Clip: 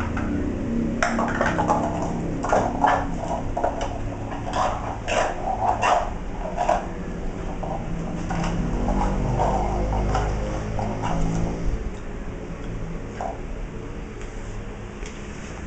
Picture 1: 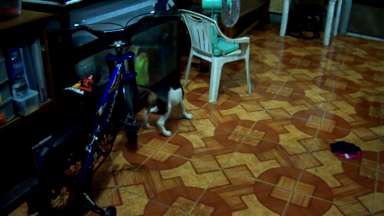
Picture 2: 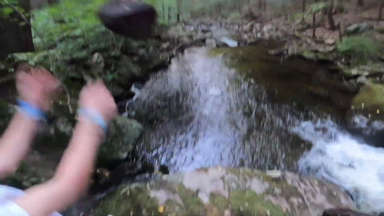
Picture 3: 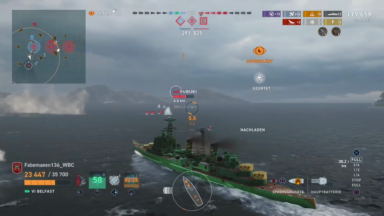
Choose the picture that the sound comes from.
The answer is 1